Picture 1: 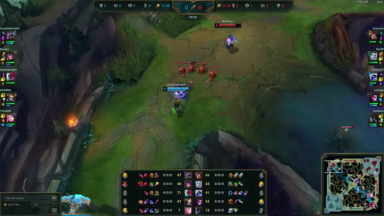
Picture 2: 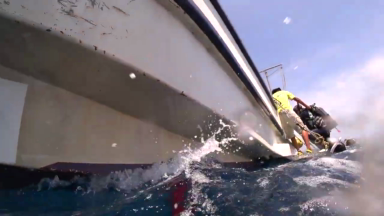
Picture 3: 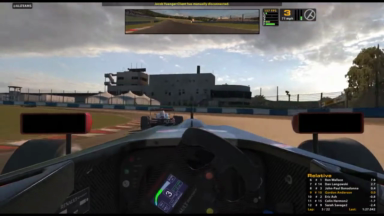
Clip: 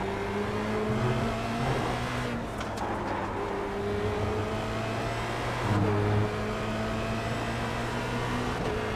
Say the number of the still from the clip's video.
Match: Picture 3